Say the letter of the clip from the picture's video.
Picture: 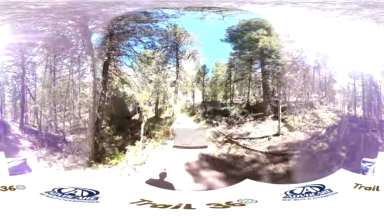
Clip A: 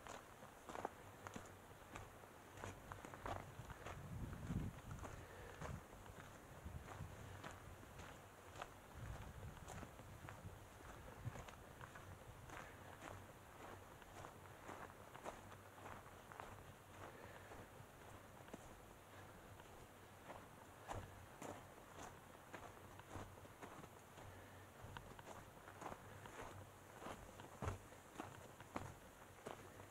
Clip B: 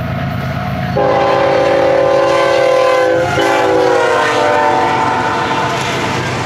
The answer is A